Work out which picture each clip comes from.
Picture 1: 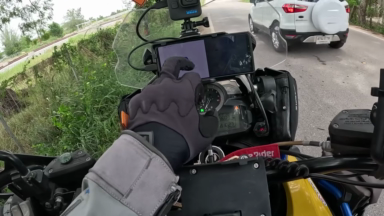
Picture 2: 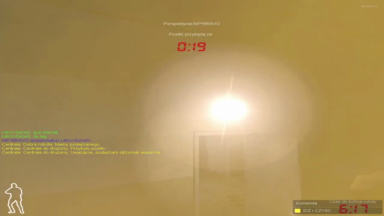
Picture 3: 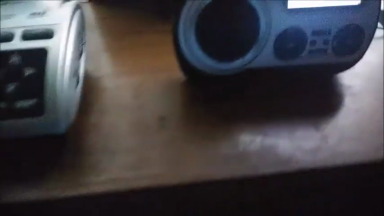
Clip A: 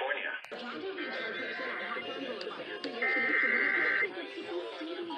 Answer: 3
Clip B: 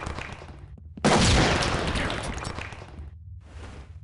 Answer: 2